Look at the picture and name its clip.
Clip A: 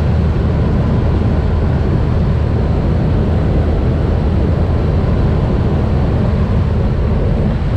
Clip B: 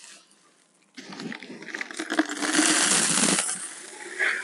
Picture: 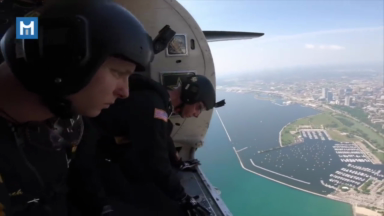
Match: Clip A